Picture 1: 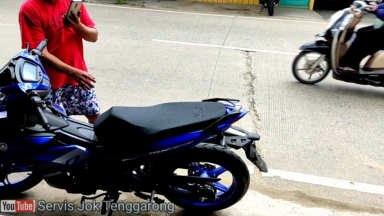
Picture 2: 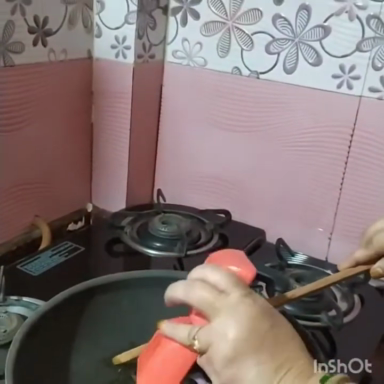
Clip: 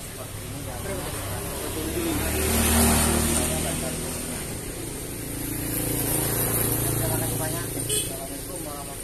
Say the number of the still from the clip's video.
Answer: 1